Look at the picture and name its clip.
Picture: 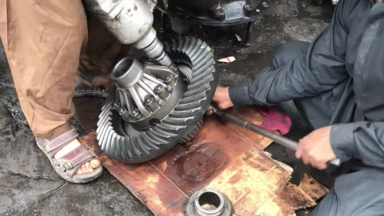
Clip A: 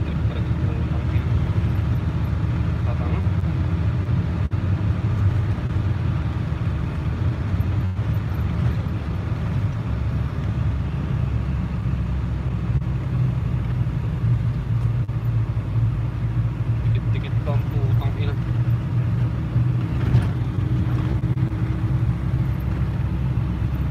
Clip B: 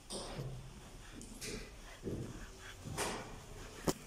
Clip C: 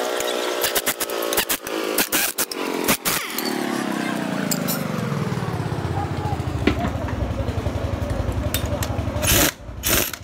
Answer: C